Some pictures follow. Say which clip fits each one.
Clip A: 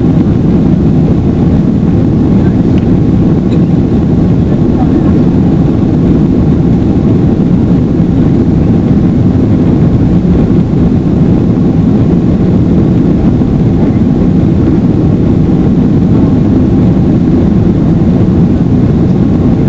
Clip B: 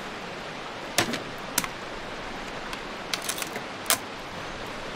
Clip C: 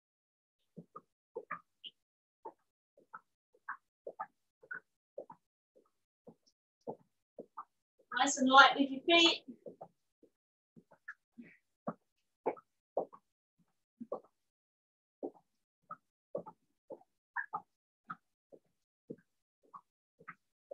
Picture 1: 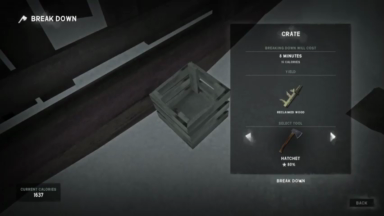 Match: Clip B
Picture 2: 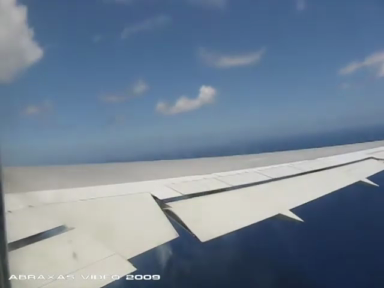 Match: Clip A